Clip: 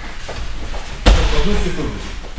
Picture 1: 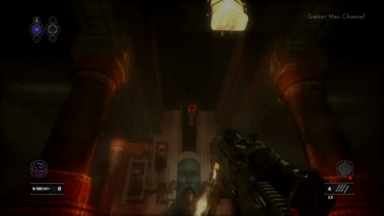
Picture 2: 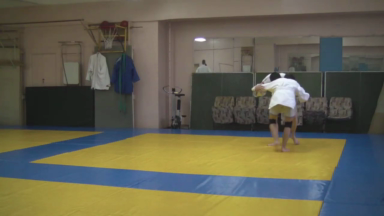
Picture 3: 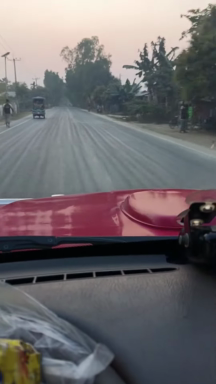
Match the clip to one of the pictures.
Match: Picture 2